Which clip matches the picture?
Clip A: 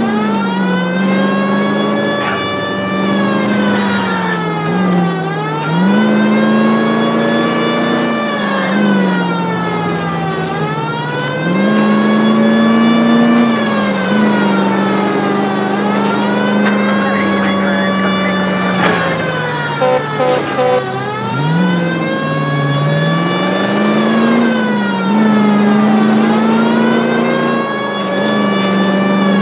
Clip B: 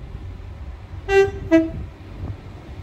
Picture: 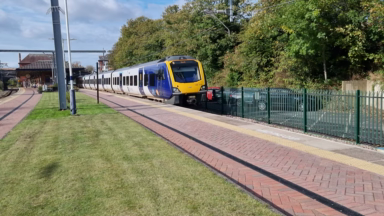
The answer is B